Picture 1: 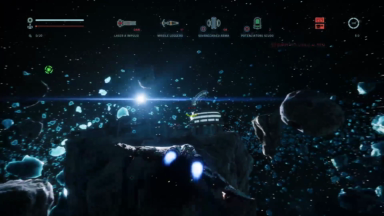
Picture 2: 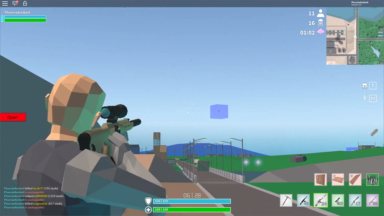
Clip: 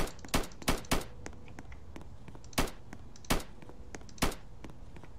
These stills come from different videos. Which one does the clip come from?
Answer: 2